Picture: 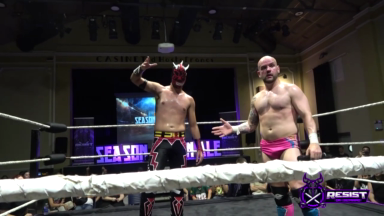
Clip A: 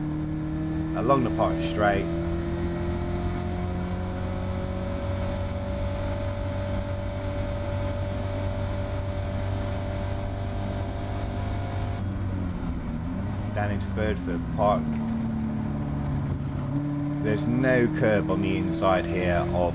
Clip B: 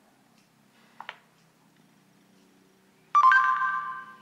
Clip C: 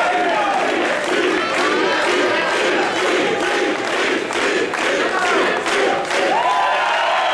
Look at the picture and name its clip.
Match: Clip C